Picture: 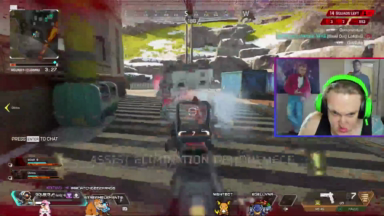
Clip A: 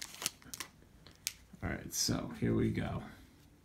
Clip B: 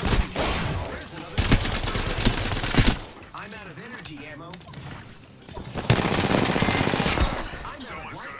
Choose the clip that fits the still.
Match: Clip B